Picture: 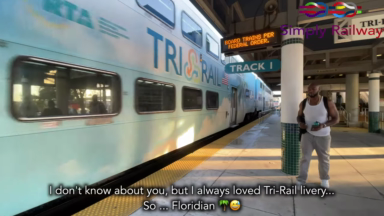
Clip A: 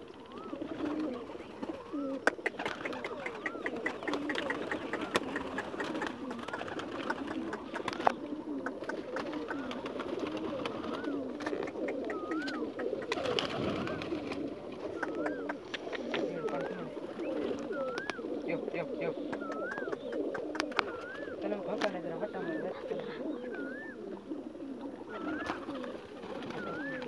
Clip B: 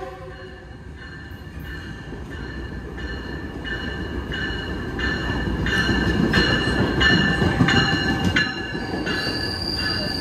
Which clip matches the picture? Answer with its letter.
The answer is B